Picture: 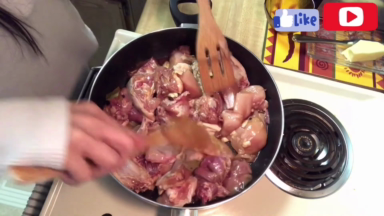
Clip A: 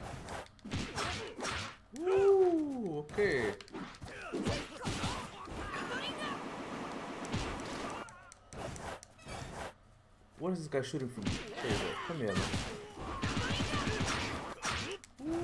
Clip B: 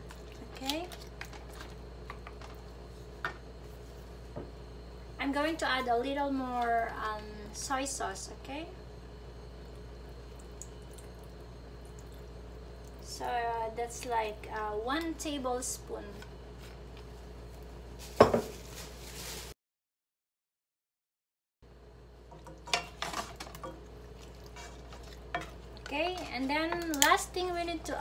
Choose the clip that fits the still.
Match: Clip B